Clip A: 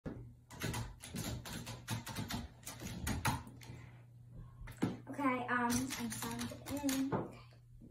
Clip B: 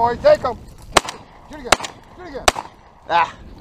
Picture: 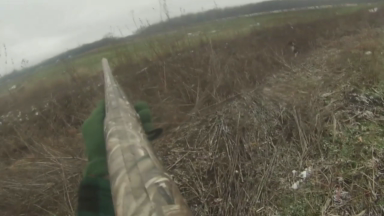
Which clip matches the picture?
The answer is B